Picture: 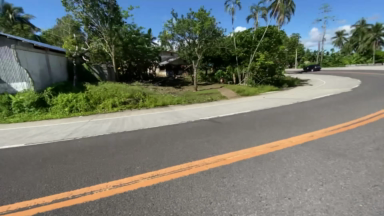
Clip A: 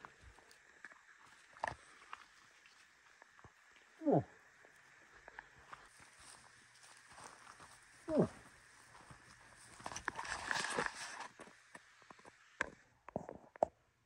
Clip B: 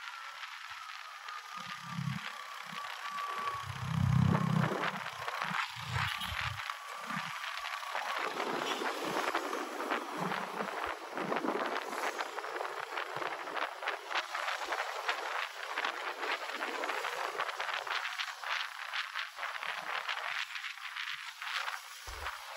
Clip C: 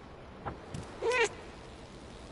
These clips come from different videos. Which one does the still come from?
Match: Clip B